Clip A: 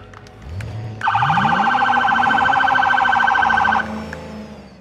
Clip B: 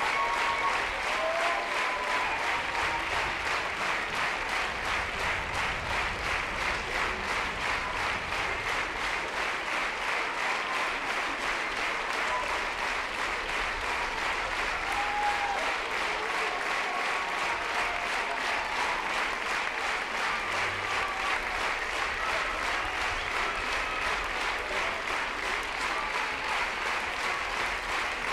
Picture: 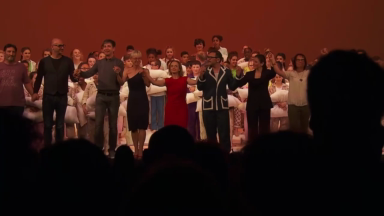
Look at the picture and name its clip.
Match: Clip B